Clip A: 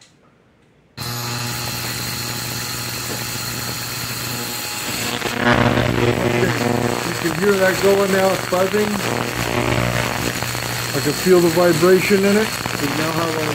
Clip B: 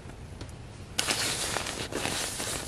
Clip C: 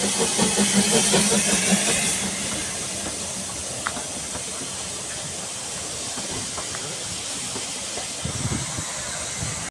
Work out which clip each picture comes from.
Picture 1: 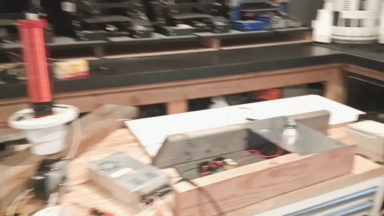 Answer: A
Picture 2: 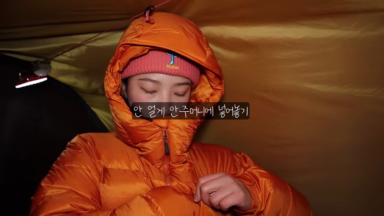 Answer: B